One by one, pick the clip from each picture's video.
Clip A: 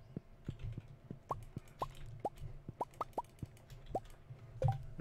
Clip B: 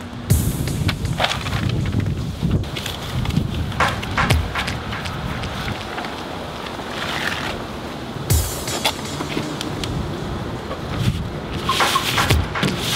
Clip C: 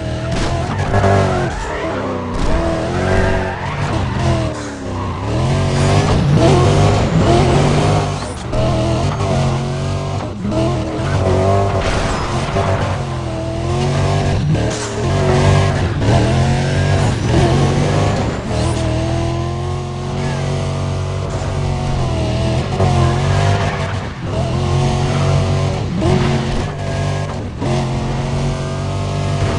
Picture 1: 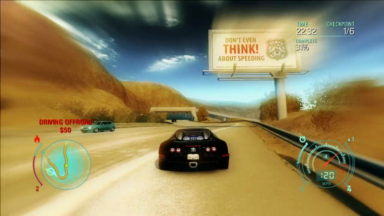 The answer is C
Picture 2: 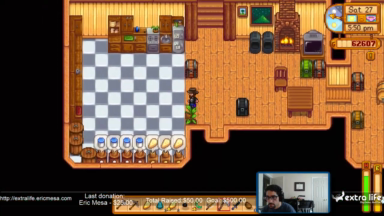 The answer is A